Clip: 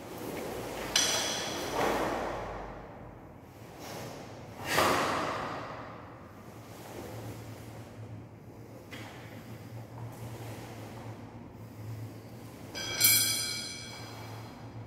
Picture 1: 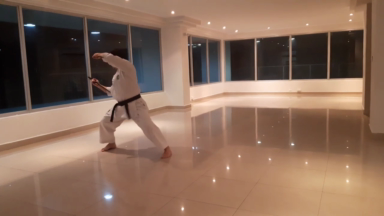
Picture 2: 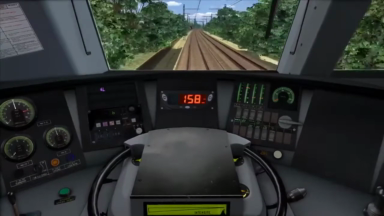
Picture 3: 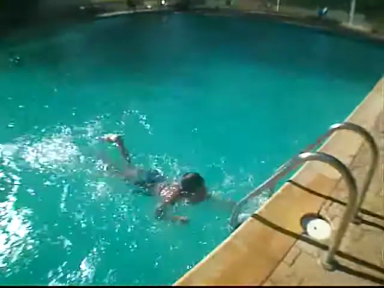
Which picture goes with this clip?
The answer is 1